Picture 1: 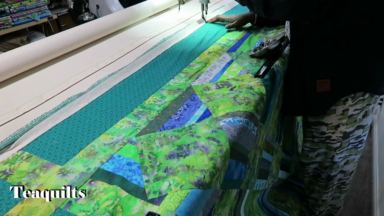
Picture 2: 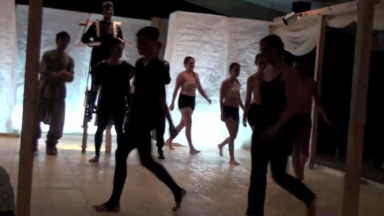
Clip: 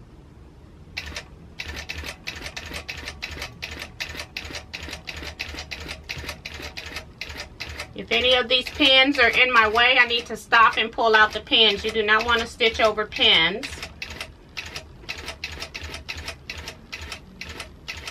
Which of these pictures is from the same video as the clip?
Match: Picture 1